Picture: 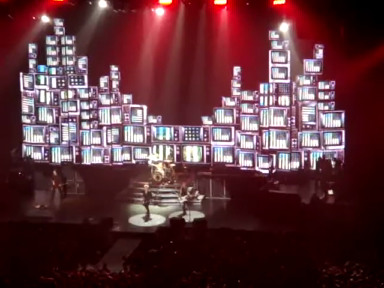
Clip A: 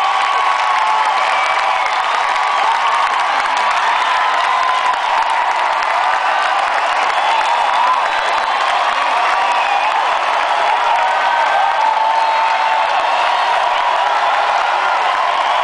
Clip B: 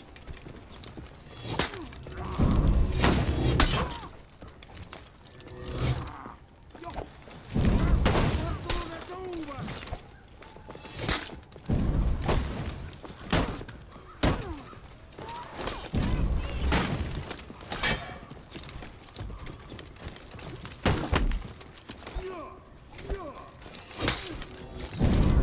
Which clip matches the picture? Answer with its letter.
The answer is A